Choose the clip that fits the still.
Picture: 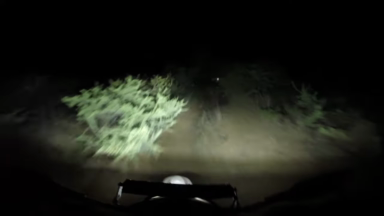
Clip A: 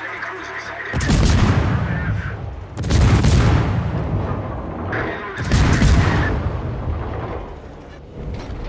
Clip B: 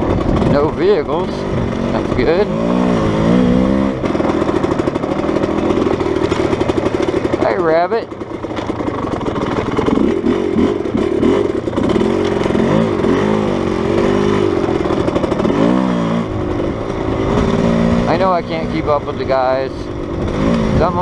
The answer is B